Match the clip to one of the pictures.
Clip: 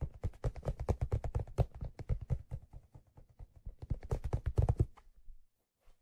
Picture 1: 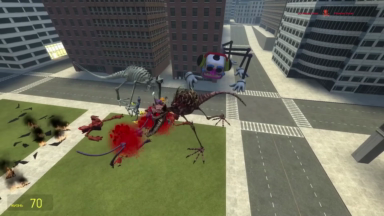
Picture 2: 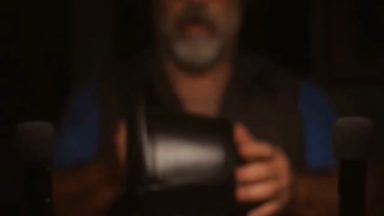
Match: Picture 2